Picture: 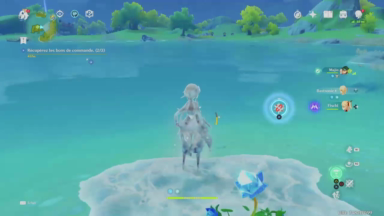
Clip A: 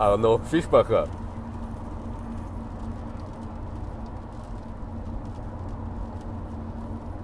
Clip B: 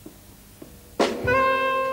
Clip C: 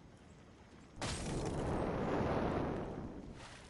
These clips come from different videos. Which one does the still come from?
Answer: C